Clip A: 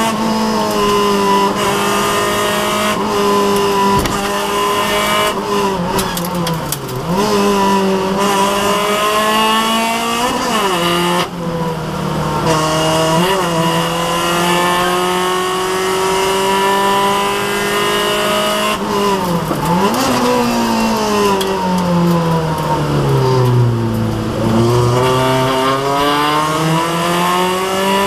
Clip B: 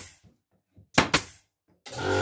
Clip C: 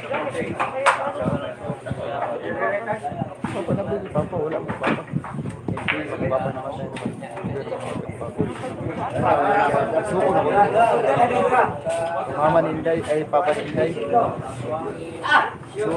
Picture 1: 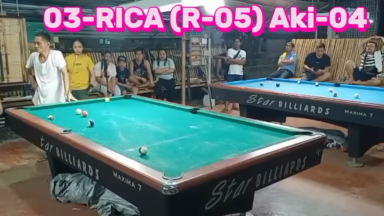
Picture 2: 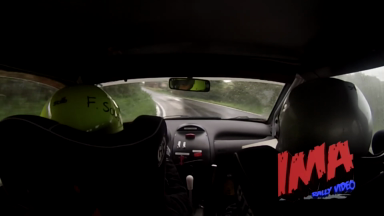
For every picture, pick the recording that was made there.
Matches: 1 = C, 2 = A